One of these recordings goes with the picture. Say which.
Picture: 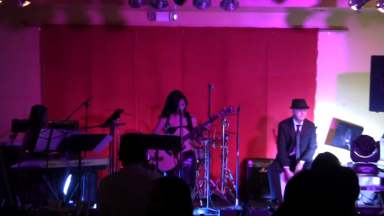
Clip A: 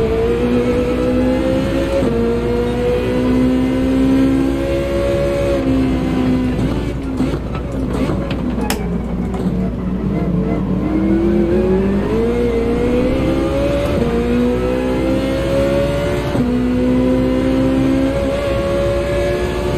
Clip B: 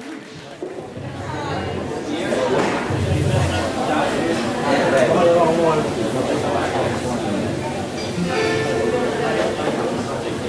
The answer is B